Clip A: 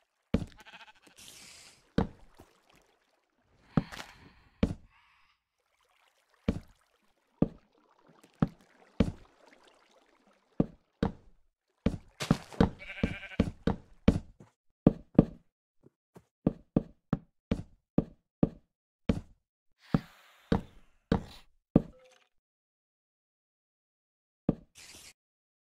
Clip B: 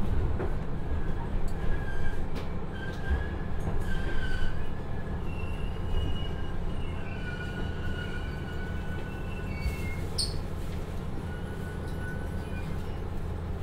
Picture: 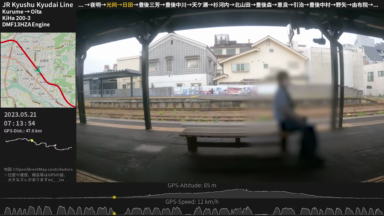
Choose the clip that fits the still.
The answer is B